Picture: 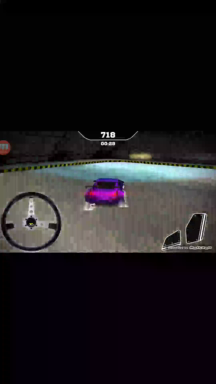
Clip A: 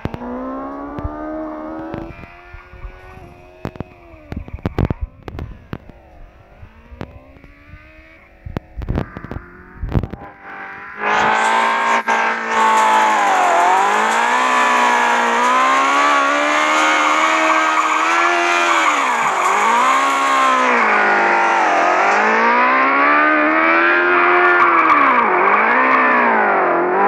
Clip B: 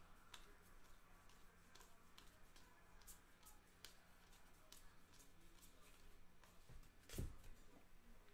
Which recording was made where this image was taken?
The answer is A